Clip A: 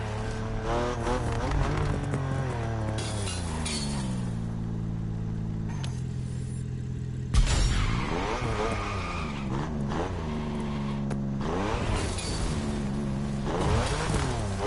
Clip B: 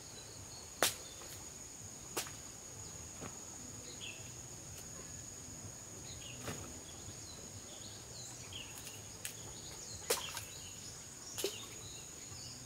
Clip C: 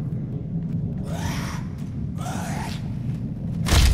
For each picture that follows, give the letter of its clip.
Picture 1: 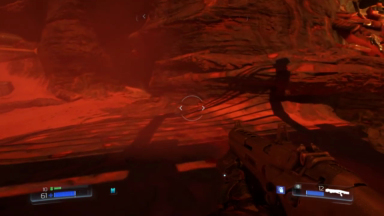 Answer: C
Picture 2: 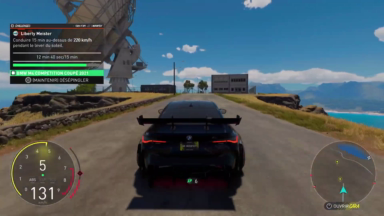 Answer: A